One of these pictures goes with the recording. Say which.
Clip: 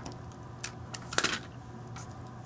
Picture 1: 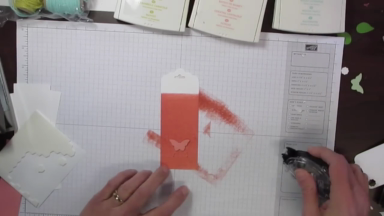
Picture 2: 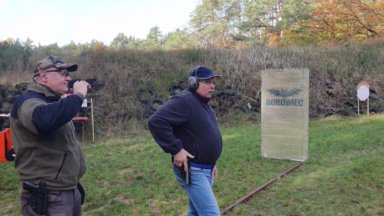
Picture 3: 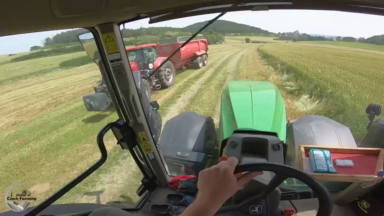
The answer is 1